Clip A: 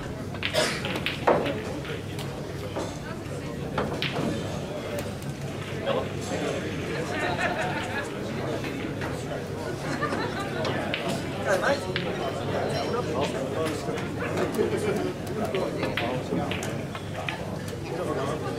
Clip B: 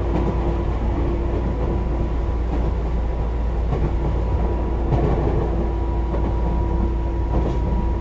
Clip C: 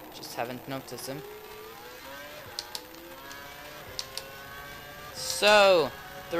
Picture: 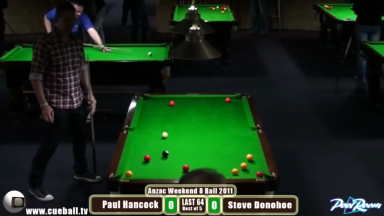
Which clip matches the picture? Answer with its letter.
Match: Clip A